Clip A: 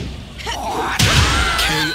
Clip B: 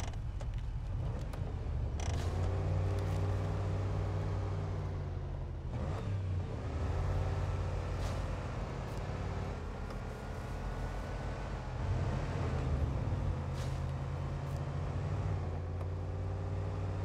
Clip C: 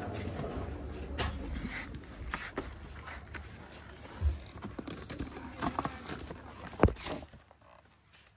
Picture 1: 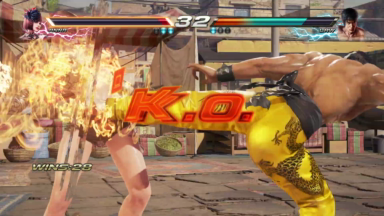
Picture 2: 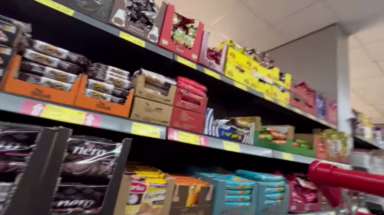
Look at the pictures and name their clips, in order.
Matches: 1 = A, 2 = C